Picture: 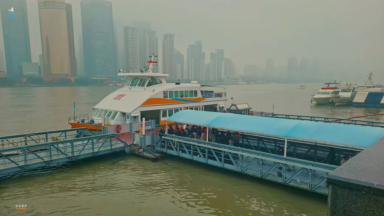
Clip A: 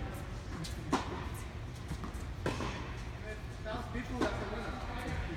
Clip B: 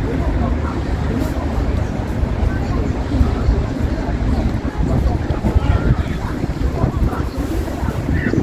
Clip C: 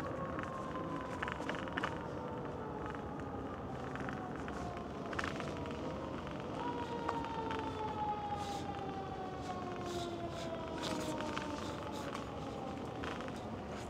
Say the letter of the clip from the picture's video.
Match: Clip B